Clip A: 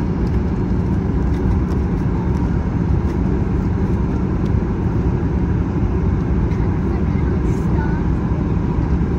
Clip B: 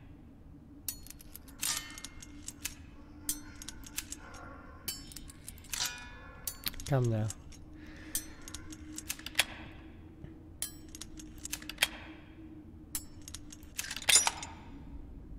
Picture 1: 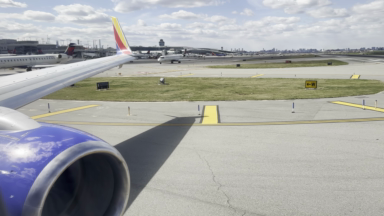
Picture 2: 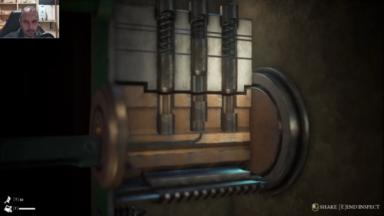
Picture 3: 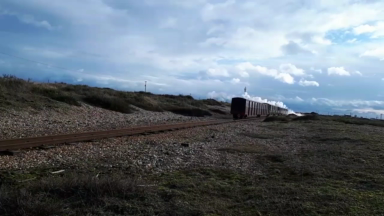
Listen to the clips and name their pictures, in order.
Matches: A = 1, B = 2